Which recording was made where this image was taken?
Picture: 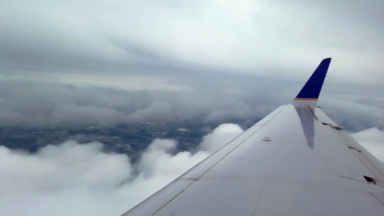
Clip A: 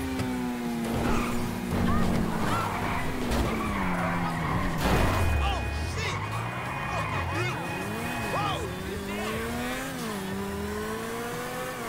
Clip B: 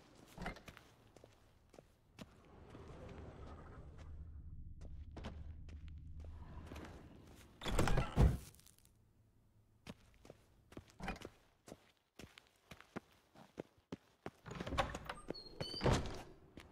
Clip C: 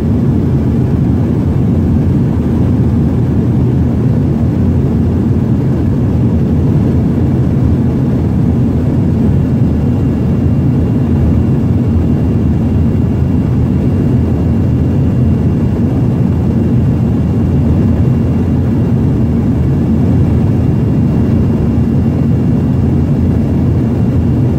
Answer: C